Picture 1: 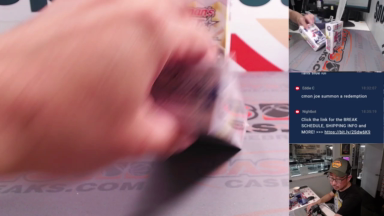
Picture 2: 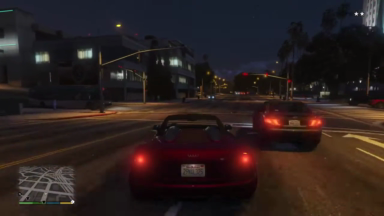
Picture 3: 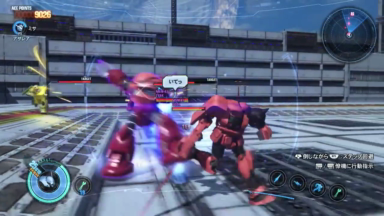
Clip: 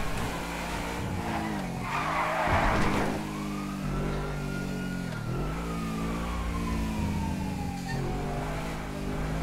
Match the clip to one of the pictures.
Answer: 2